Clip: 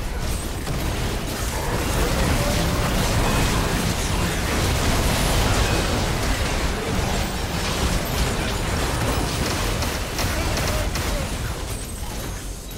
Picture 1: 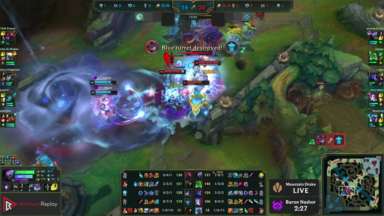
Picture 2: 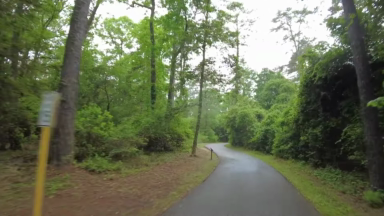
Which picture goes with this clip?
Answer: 1